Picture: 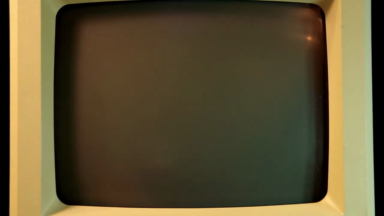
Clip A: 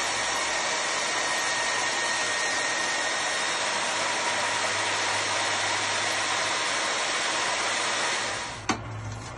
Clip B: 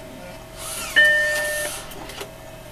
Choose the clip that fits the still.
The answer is B